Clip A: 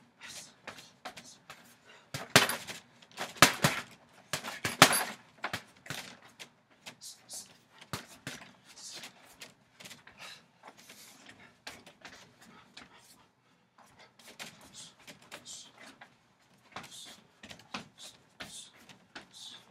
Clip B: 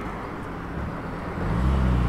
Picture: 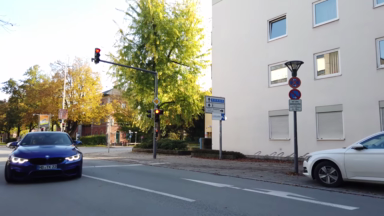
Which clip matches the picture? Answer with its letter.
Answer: B